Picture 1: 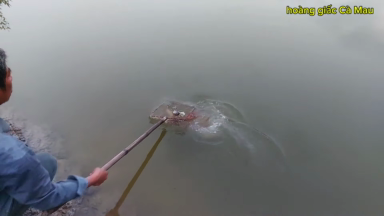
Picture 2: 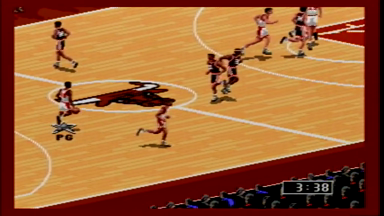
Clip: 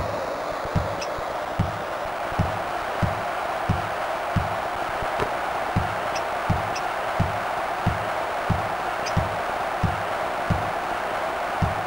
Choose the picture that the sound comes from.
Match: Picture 2